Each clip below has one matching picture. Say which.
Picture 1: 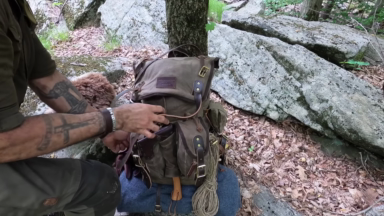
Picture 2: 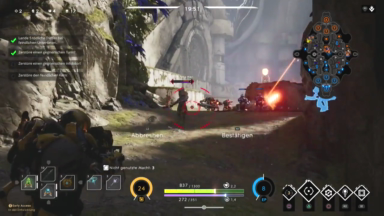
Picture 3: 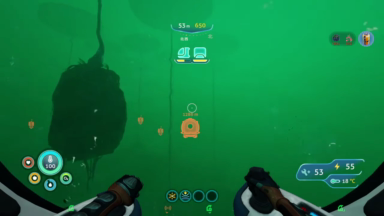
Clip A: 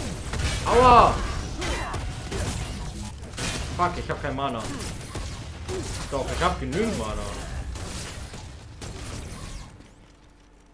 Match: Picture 2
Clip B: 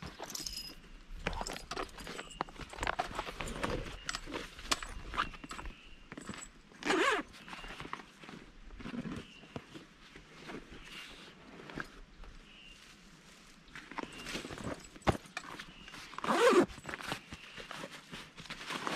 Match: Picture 1